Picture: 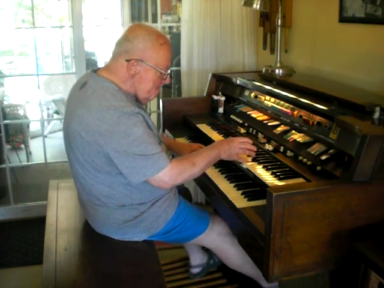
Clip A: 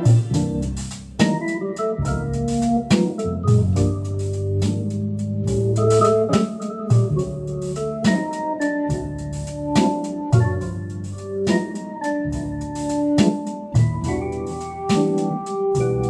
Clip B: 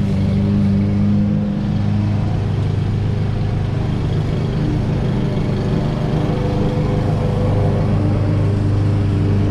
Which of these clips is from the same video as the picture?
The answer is A